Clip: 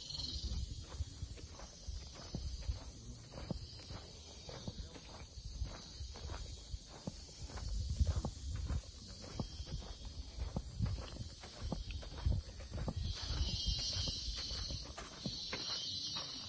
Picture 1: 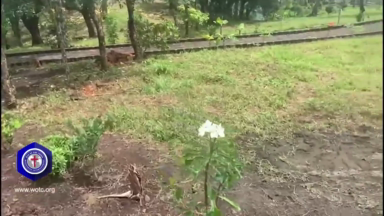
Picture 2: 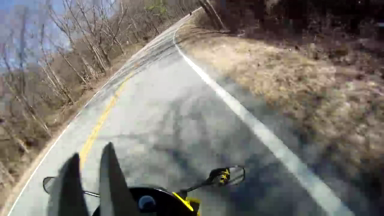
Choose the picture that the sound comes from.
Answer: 1